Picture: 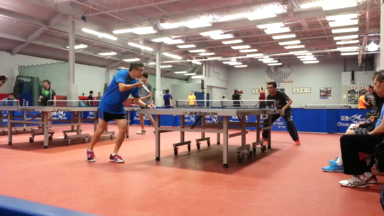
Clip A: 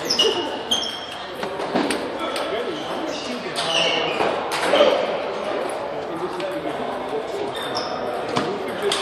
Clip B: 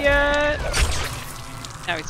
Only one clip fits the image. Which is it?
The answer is A